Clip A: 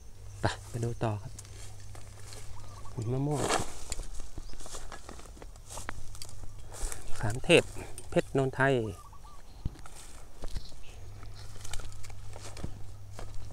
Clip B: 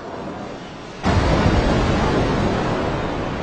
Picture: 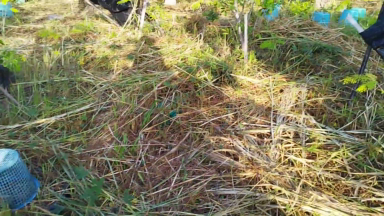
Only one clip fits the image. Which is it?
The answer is A